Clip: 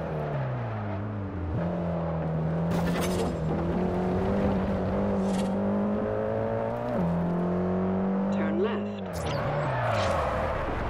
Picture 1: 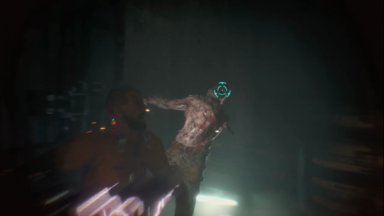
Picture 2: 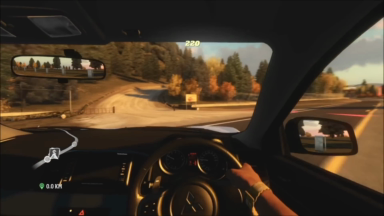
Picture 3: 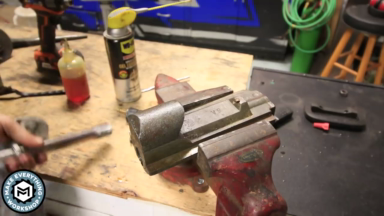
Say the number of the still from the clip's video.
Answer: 2